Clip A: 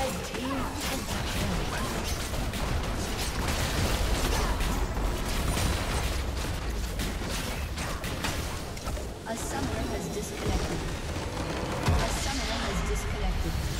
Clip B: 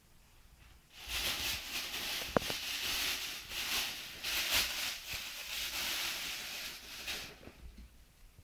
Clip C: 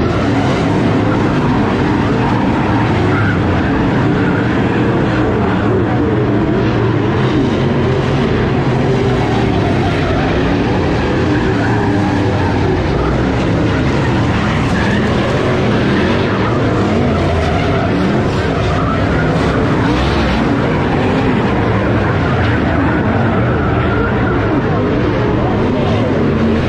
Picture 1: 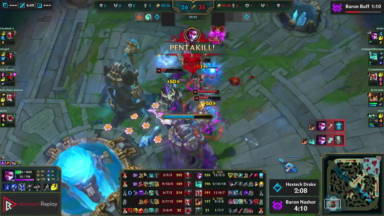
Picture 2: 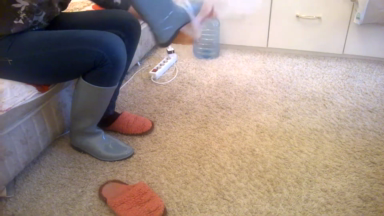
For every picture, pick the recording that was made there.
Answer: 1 A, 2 B